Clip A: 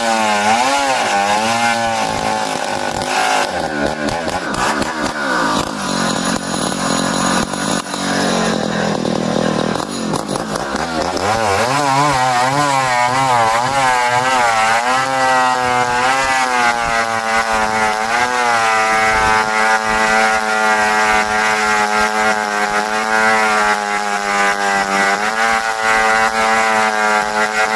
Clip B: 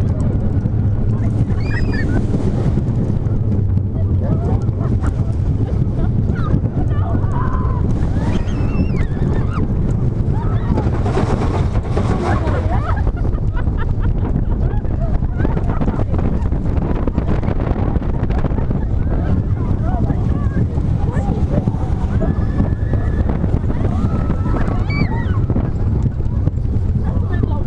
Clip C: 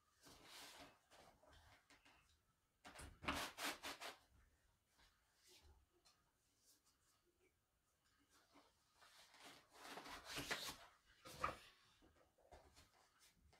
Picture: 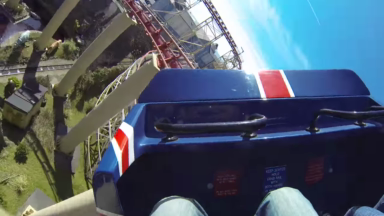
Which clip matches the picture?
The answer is B